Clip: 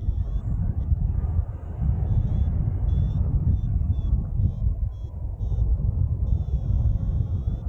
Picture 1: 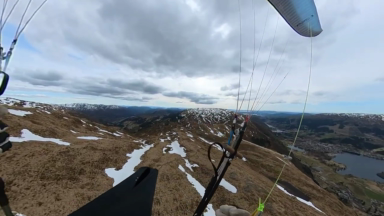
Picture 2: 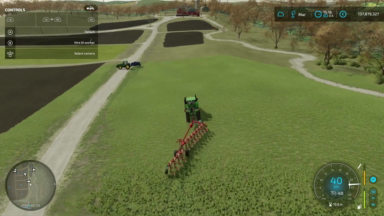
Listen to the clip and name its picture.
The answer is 1